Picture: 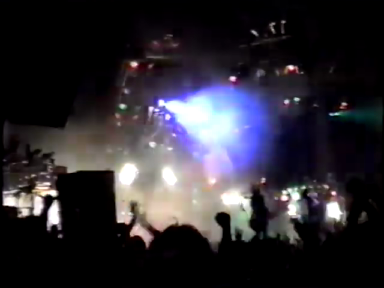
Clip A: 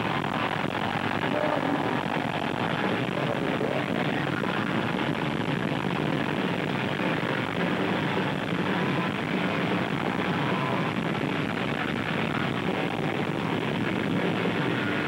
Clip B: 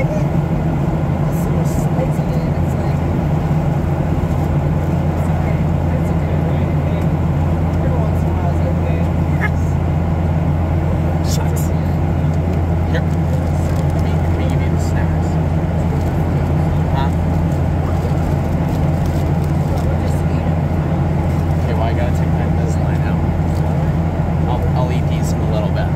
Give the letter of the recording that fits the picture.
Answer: A